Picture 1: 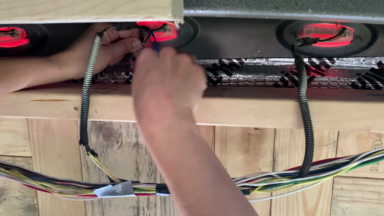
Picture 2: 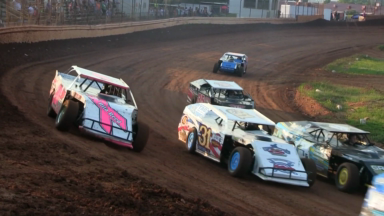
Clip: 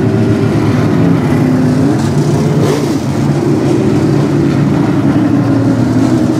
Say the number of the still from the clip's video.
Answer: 2